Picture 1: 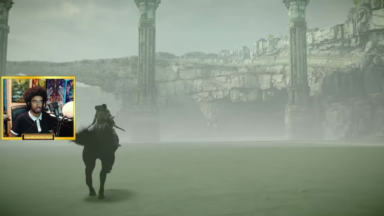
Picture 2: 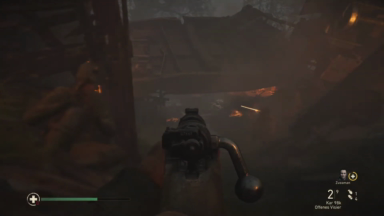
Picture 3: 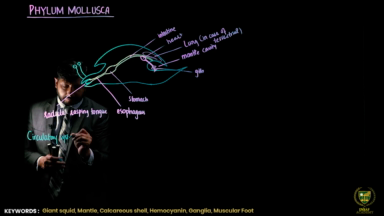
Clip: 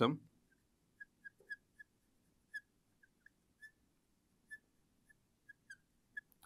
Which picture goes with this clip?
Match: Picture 3